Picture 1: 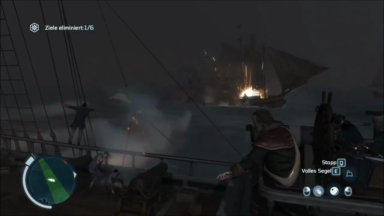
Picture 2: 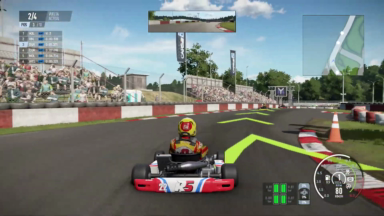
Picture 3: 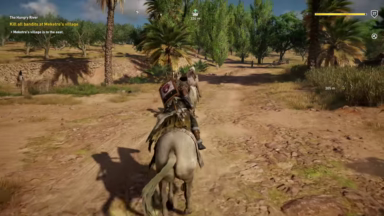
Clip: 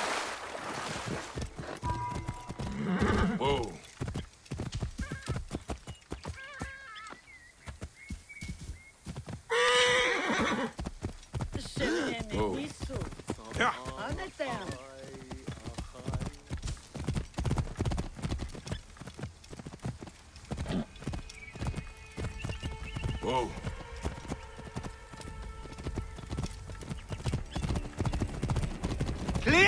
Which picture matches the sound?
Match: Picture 3